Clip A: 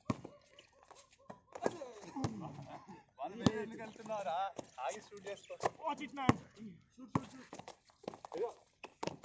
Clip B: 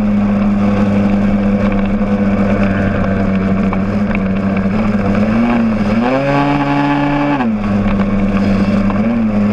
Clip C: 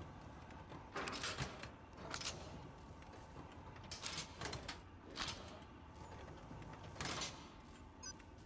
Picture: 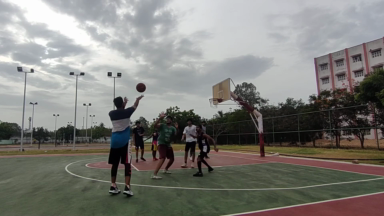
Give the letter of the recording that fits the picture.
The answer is A